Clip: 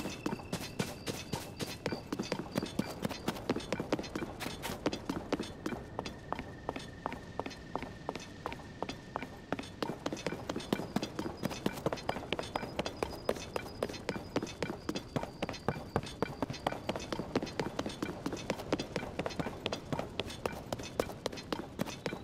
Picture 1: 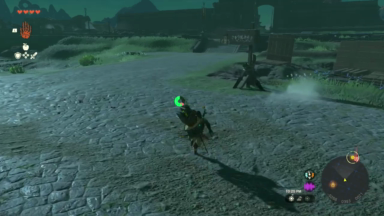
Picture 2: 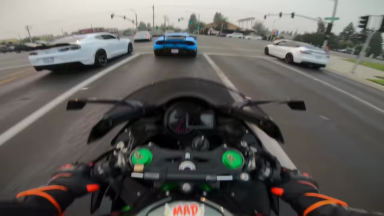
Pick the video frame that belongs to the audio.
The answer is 1